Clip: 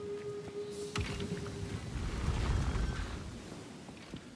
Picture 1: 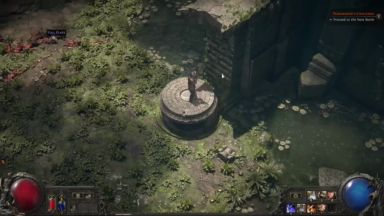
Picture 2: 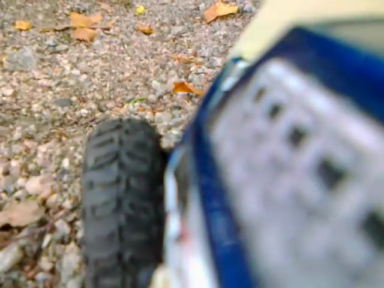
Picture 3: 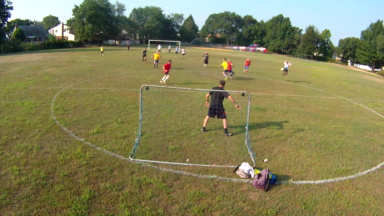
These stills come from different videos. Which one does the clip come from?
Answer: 1